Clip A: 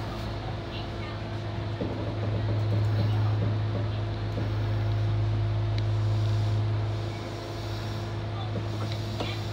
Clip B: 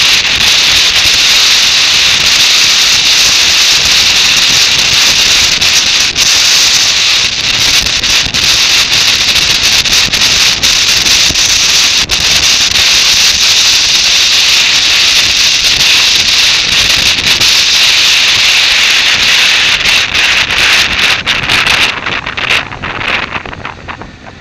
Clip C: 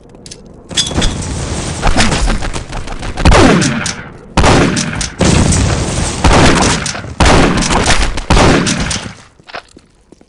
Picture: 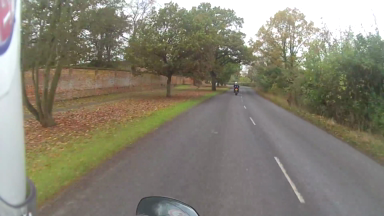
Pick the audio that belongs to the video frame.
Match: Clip B